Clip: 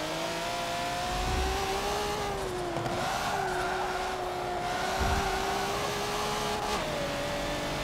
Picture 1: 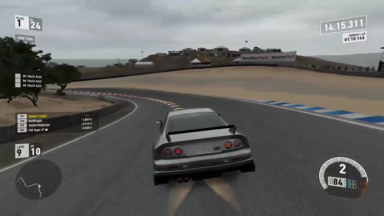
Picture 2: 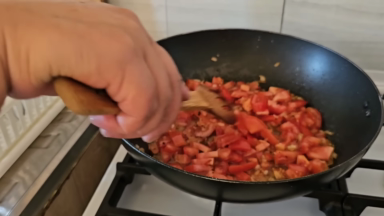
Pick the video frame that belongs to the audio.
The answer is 1